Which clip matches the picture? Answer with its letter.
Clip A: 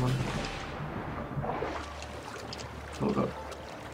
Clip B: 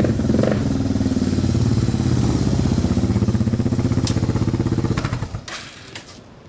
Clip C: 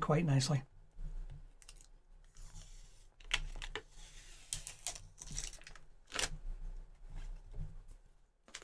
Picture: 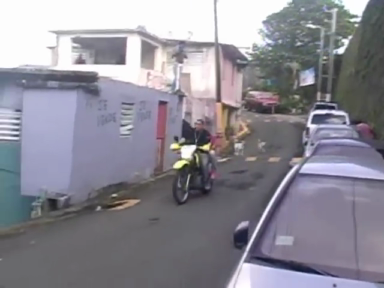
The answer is B